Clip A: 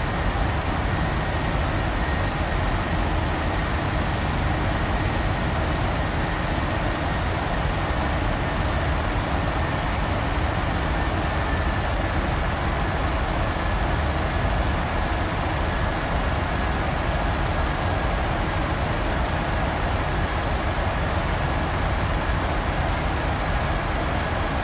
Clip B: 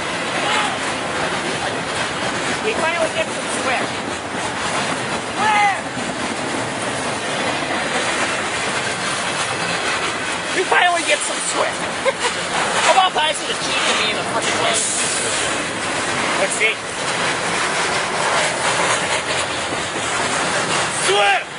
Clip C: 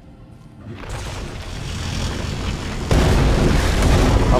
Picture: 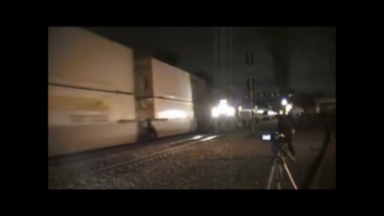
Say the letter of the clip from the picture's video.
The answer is B